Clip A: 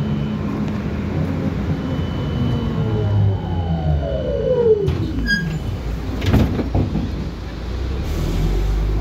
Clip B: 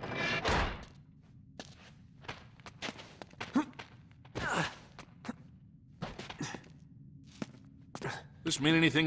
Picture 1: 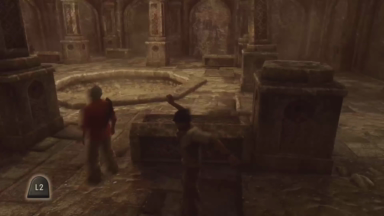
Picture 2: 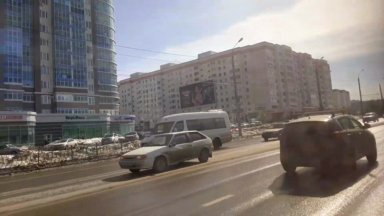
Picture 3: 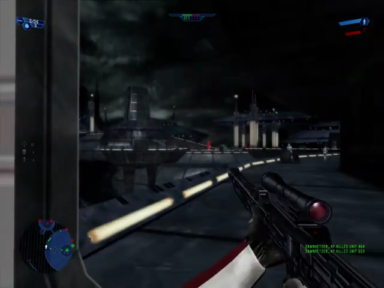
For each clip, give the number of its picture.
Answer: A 2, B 1